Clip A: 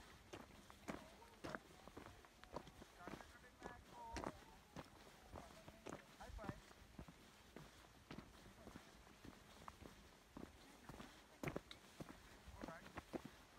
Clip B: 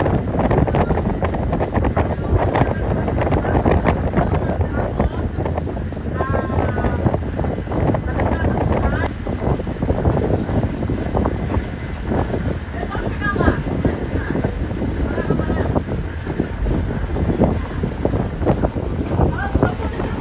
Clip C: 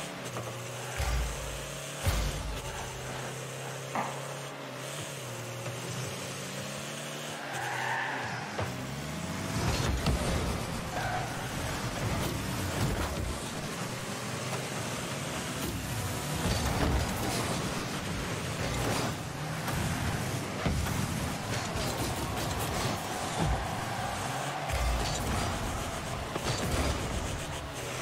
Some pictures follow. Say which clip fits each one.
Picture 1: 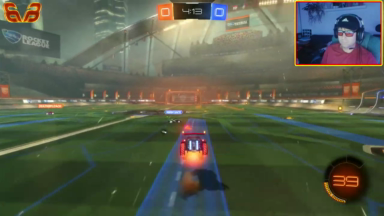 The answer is C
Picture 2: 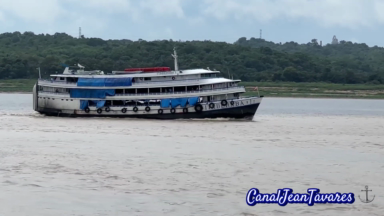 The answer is B